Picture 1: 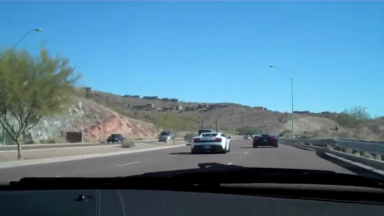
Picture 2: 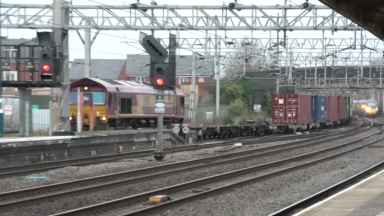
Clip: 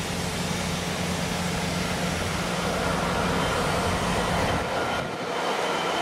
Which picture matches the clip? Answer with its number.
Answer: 2